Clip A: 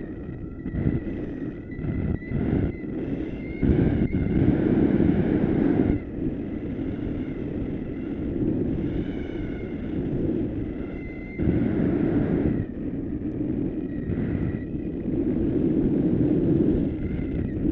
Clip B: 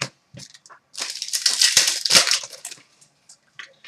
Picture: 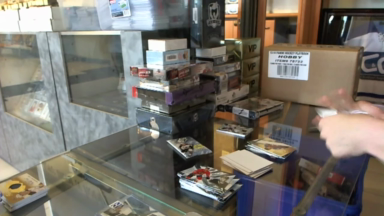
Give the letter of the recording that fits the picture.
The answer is B